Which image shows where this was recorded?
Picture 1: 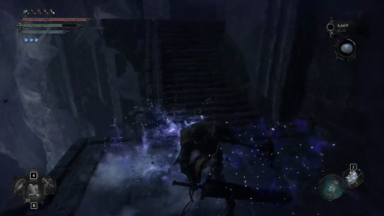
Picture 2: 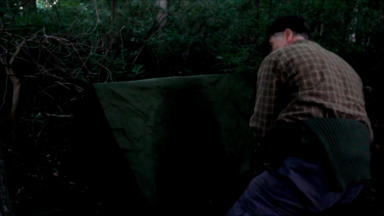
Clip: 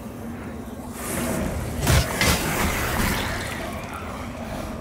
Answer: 1